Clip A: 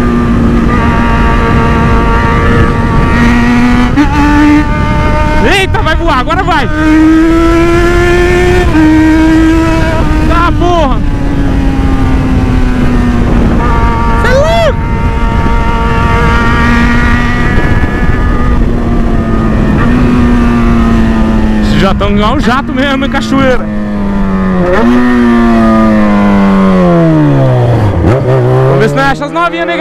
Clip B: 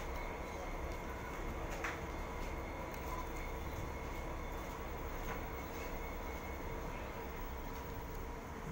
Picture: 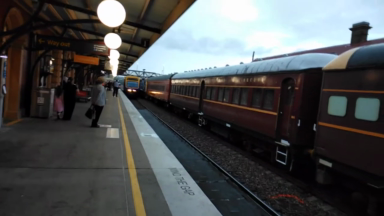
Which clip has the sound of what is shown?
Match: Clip B